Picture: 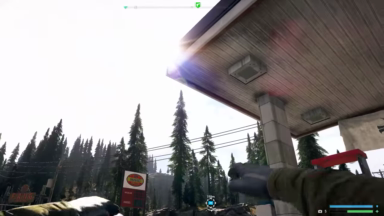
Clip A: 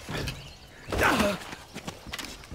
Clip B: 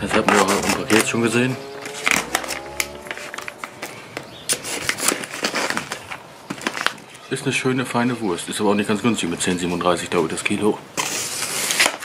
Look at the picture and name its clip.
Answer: A